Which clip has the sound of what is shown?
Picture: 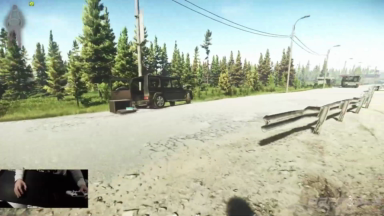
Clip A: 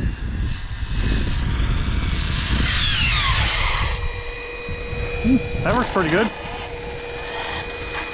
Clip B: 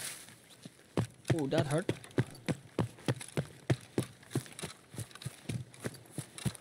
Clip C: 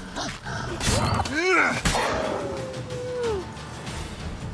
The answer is B